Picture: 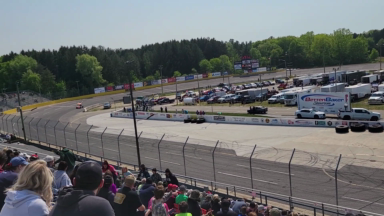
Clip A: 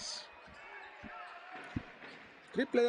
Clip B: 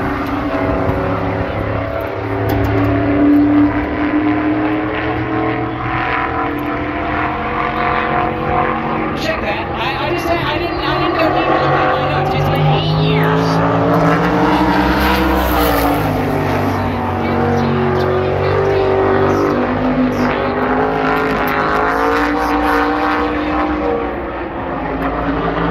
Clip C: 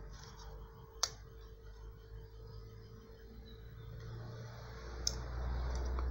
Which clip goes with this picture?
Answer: B